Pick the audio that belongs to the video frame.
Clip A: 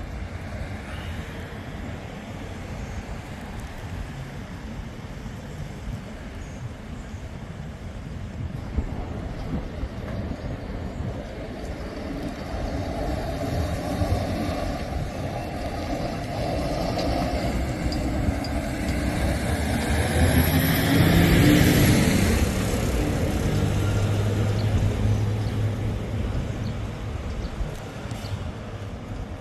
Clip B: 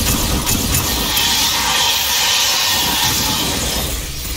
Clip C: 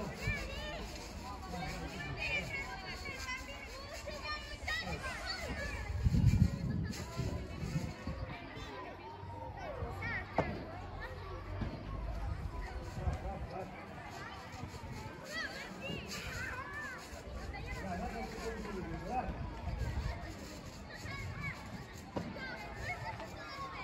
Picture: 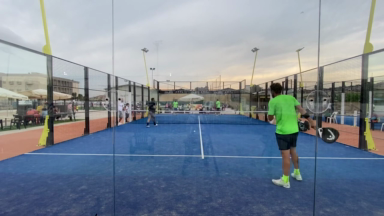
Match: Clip C